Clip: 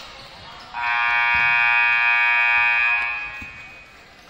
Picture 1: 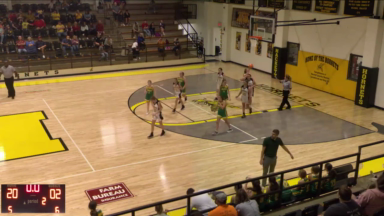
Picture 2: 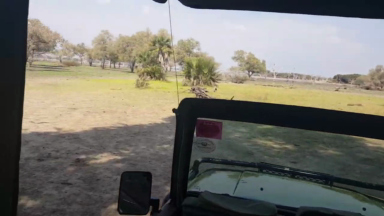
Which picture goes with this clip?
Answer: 1